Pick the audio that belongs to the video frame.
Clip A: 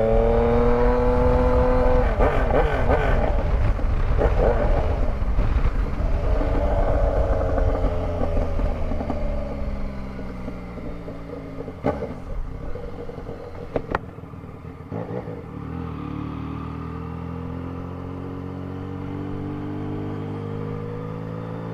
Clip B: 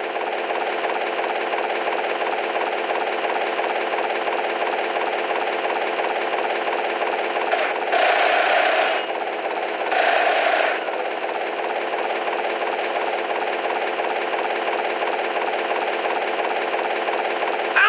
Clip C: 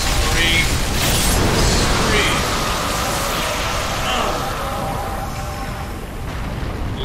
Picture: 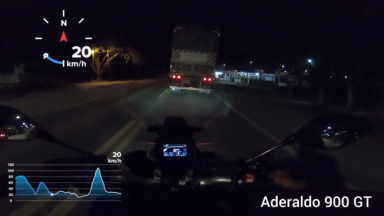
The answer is A